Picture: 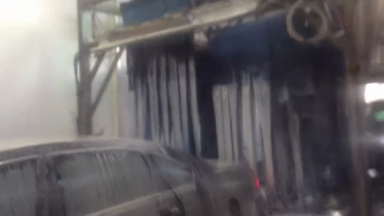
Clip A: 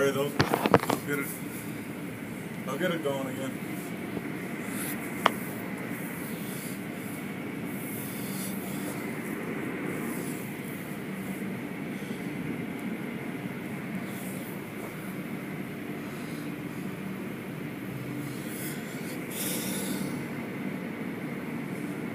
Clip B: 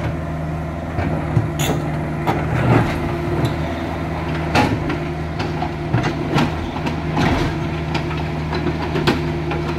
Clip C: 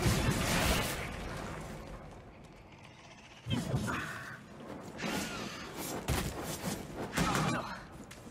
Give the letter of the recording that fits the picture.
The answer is A